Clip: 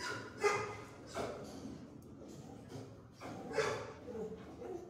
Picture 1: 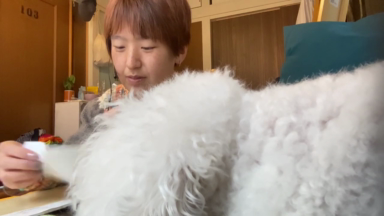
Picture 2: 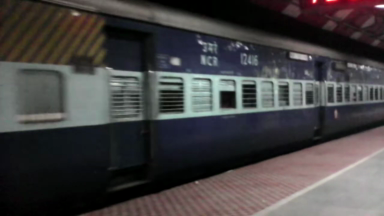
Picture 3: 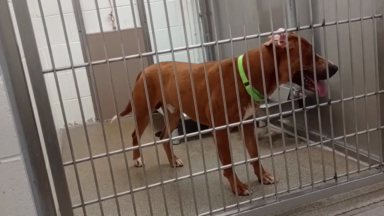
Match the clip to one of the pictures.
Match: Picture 3